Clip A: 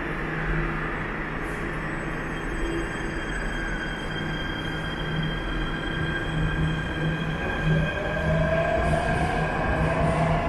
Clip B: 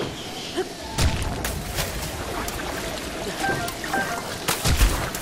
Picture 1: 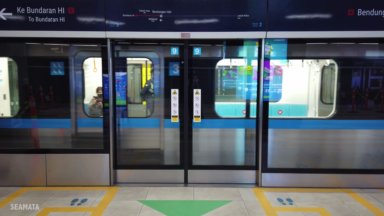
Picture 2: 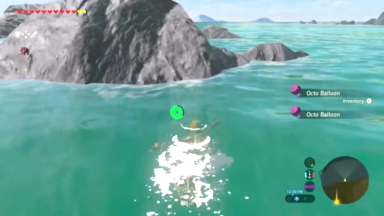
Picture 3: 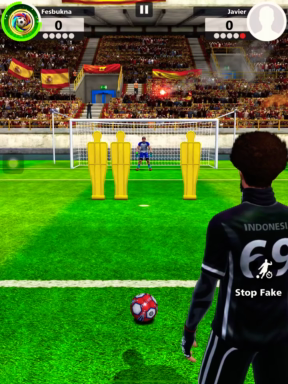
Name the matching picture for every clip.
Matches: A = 1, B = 2